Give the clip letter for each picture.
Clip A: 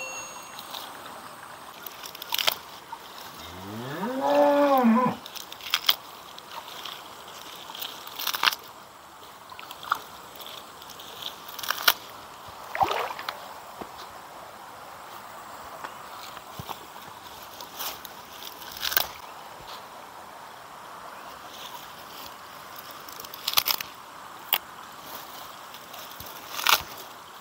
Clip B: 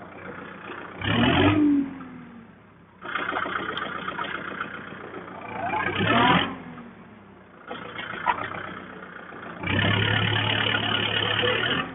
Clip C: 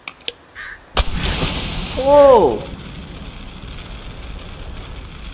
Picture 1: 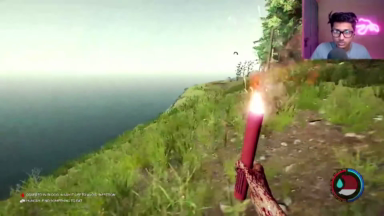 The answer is C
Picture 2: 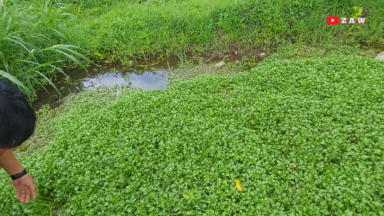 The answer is A